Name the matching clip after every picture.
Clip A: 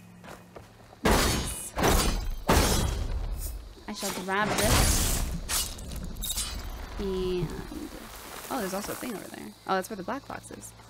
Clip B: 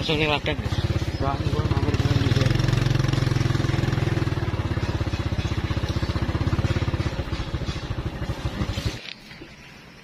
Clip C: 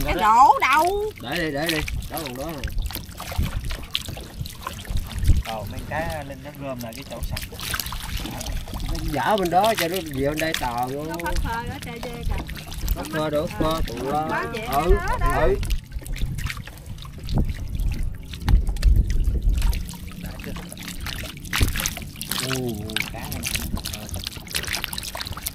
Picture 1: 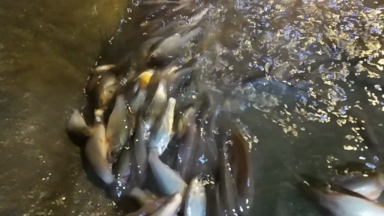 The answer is C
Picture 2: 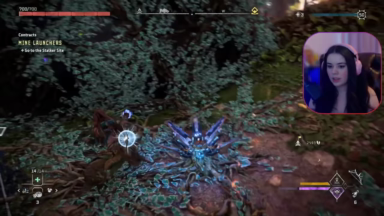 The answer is A